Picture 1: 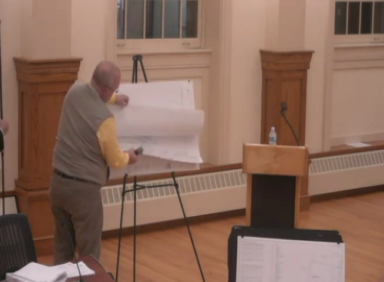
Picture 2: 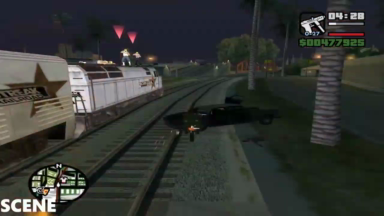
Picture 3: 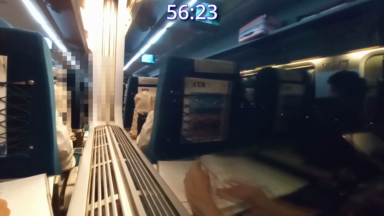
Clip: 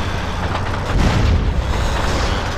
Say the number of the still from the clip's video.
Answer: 2